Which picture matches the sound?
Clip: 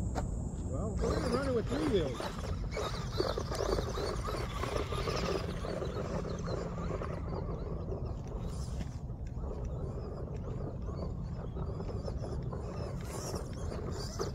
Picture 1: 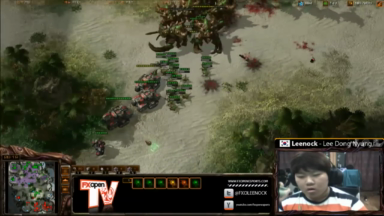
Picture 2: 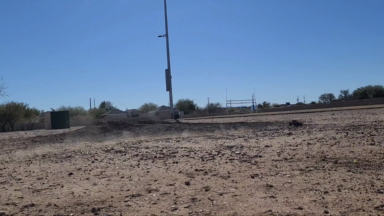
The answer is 2